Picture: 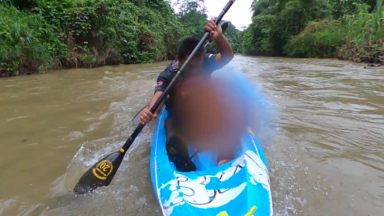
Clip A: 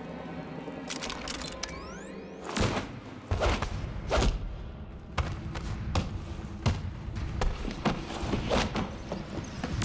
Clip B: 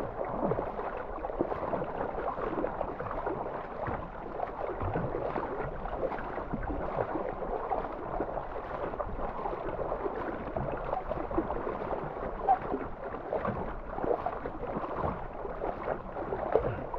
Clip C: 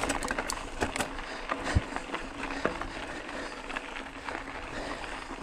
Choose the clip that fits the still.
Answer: B